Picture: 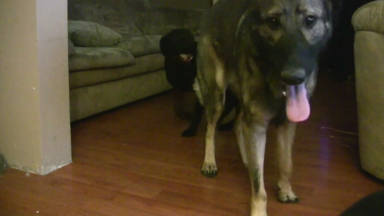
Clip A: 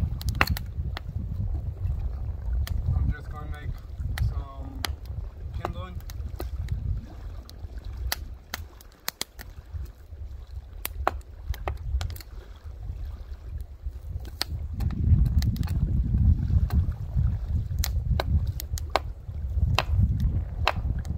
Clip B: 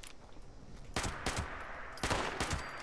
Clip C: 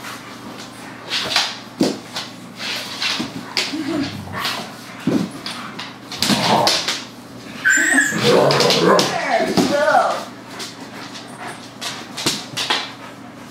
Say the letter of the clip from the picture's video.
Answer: C